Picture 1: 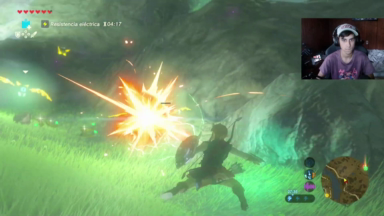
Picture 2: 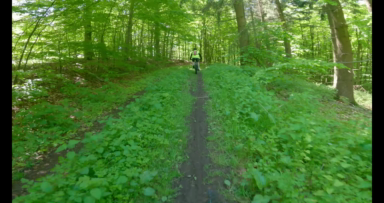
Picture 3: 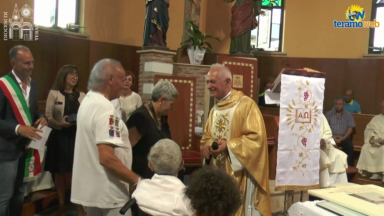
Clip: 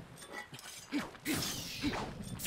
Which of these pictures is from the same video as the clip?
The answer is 1